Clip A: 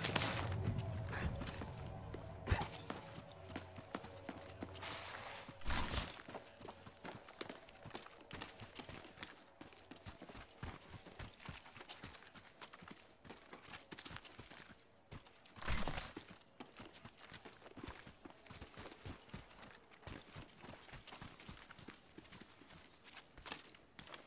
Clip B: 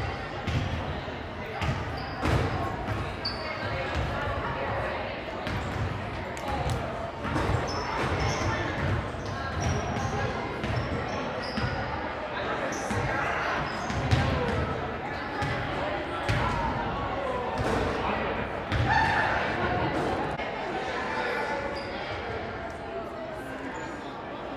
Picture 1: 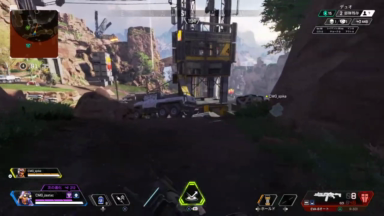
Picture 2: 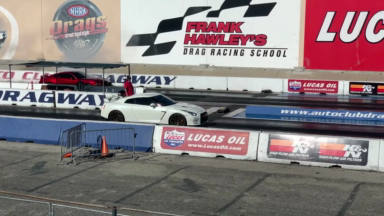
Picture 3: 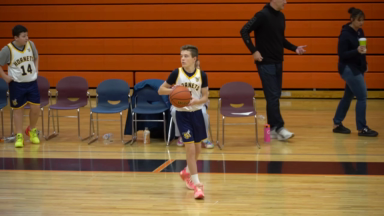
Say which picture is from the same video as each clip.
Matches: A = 1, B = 3